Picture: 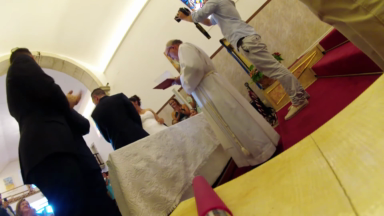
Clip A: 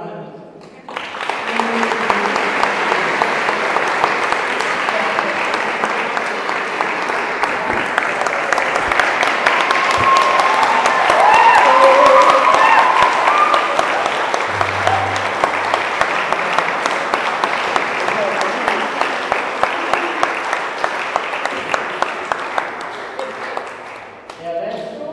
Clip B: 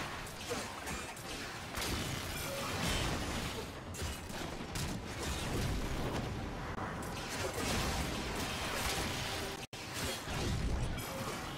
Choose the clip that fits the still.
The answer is A